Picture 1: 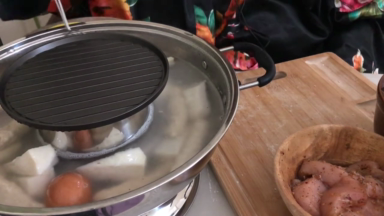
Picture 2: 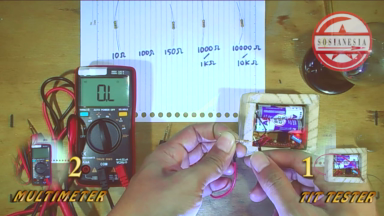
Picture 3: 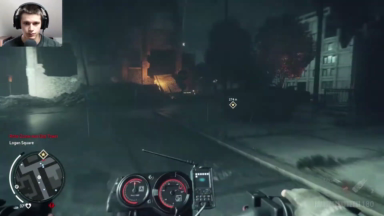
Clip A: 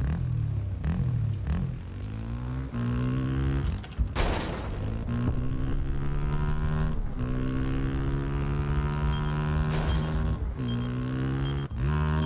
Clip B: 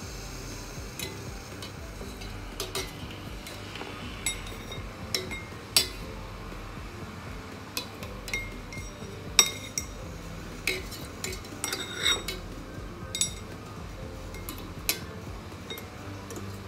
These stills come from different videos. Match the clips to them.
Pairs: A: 3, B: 1